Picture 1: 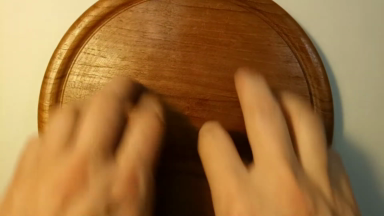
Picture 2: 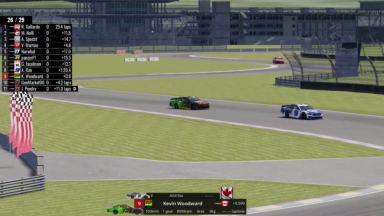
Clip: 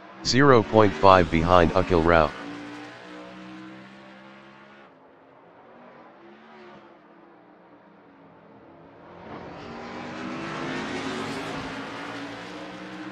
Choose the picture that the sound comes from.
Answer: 2